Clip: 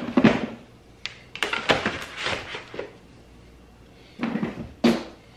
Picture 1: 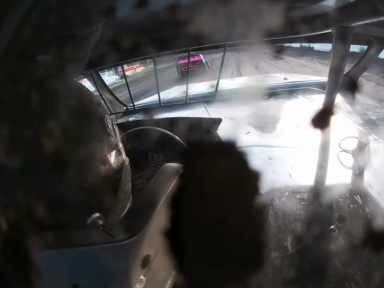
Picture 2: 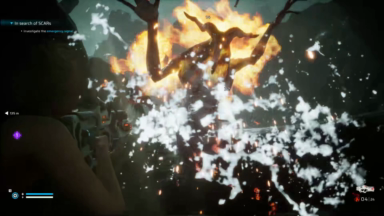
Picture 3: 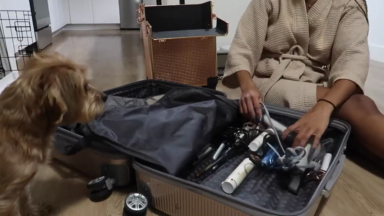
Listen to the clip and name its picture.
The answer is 3